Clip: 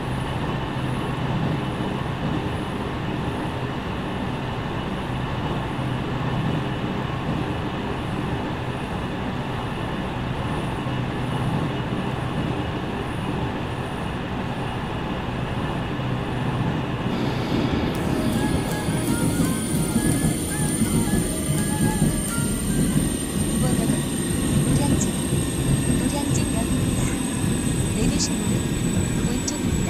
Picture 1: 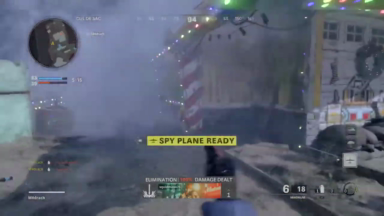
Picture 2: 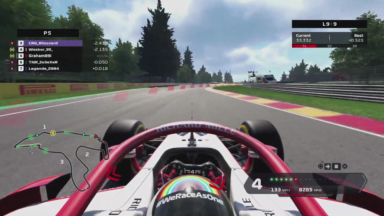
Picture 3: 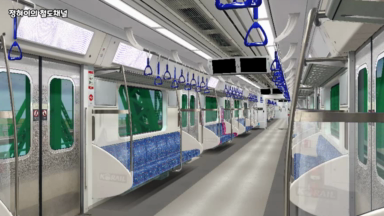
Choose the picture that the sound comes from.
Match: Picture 3